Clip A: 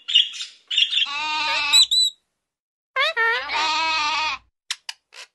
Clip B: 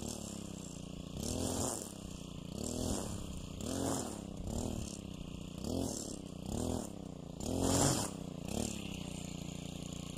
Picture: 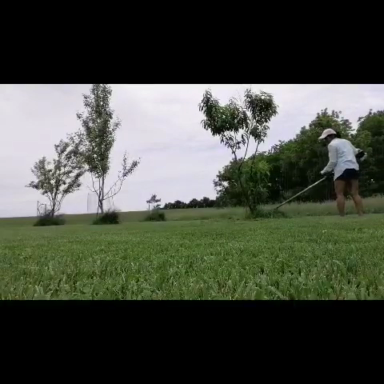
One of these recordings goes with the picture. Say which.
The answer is B